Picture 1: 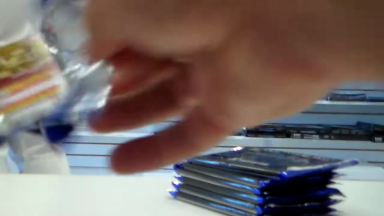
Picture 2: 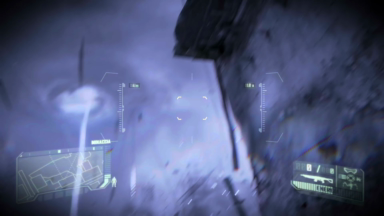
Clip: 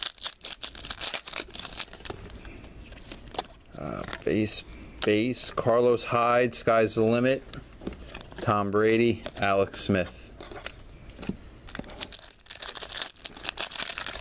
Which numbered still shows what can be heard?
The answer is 1